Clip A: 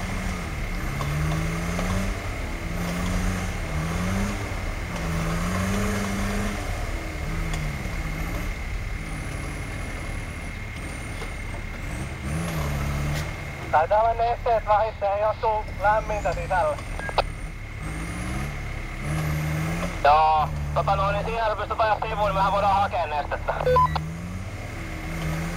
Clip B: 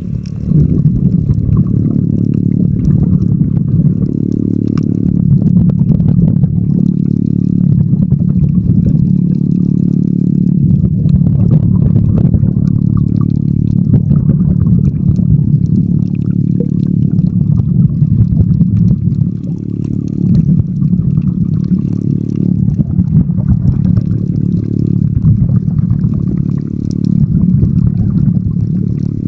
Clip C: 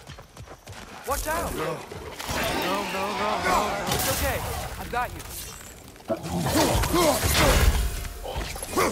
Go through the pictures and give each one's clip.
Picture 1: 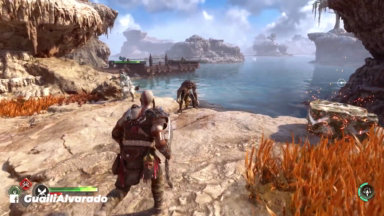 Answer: C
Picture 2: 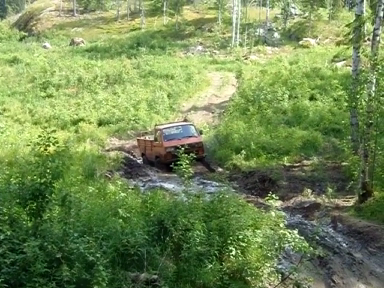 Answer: A